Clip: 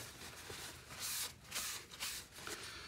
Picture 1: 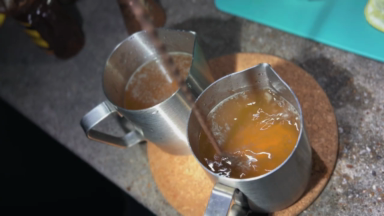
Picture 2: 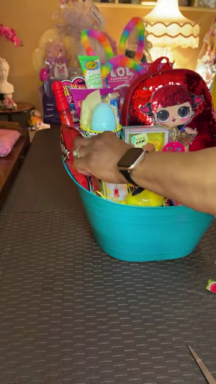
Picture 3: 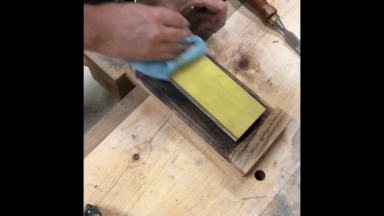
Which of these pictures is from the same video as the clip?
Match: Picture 3